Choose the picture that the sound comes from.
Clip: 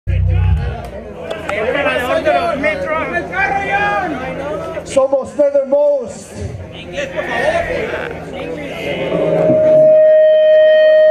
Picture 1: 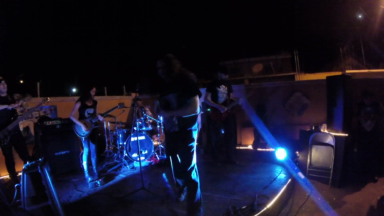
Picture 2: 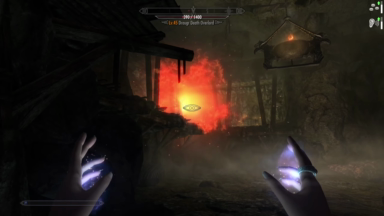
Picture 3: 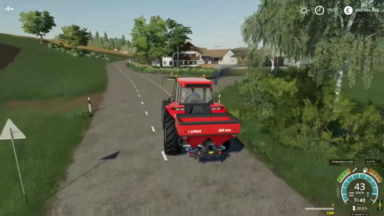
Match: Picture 1